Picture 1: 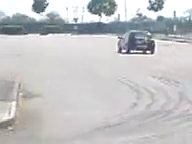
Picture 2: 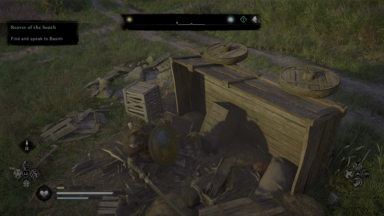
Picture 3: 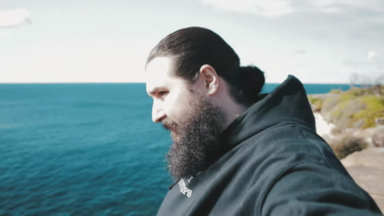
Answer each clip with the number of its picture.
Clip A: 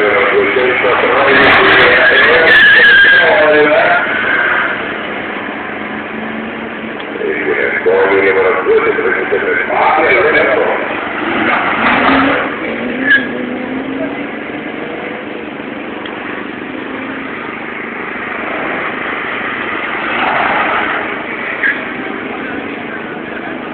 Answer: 1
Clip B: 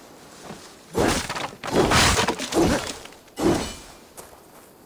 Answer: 2